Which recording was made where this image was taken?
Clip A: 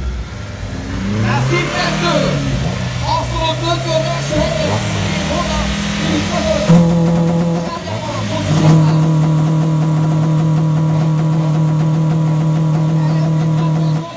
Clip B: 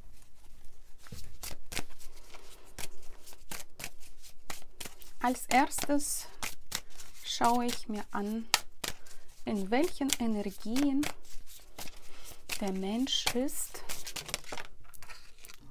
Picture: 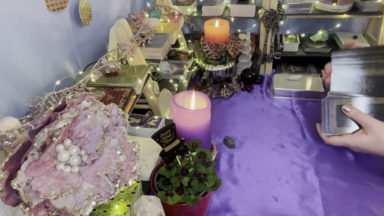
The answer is B